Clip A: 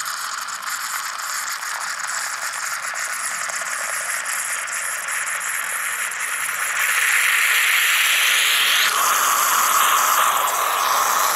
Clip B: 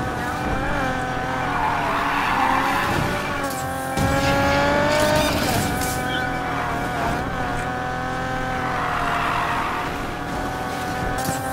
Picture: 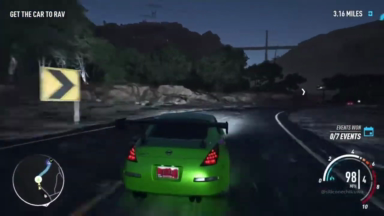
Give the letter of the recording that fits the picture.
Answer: B